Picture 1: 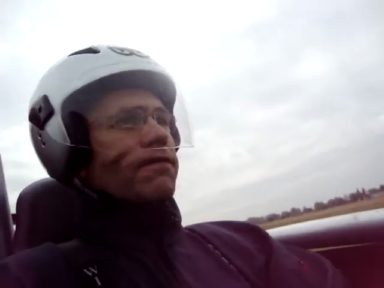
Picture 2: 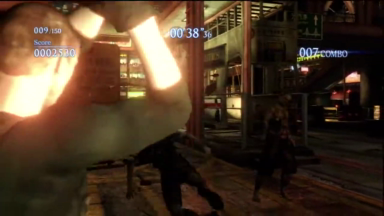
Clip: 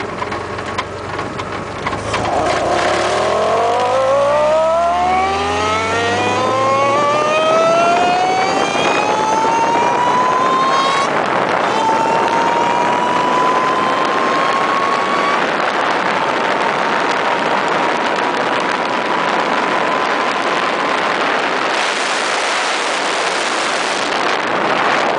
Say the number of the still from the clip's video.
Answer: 1